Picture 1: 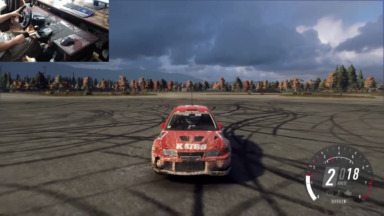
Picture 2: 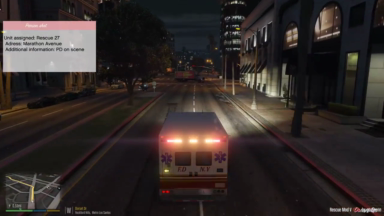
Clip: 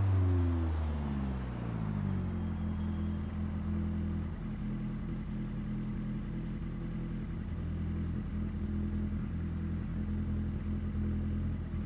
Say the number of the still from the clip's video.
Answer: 1